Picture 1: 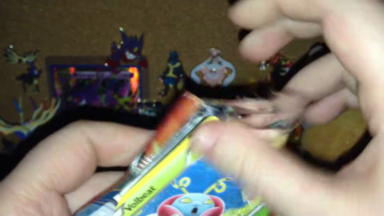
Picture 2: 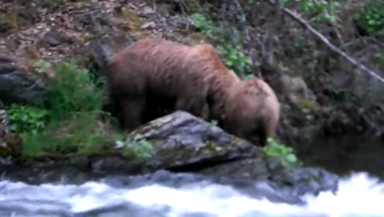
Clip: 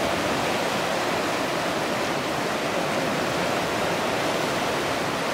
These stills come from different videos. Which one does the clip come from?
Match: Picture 2